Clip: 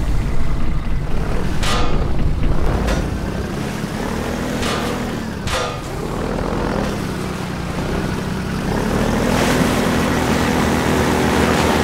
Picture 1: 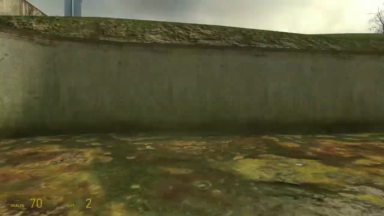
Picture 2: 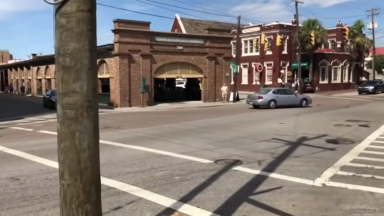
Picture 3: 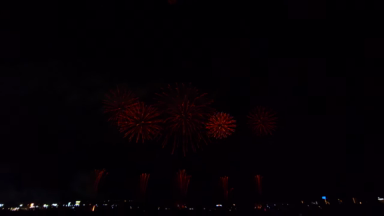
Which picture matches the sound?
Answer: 1